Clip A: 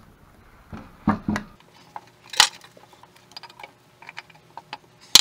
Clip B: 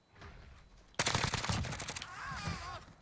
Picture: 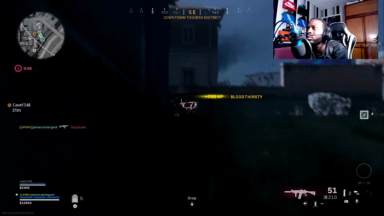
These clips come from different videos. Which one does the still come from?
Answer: B